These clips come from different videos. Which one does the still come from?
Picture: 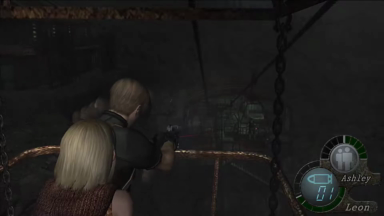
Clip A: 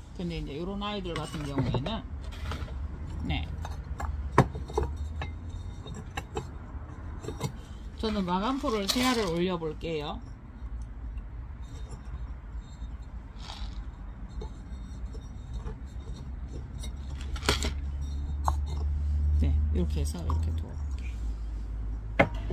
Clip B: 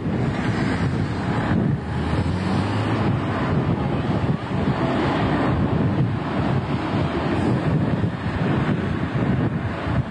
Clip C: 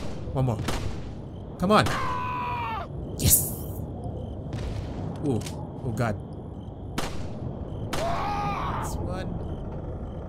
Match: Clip C